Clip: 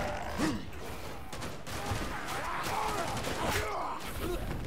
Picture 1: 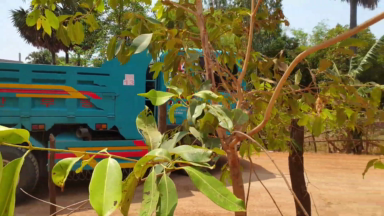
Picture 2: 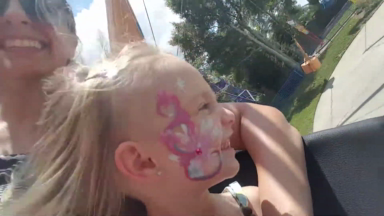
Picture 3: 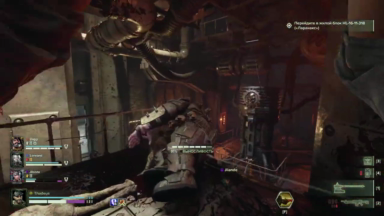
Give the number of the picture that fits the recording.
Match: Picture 3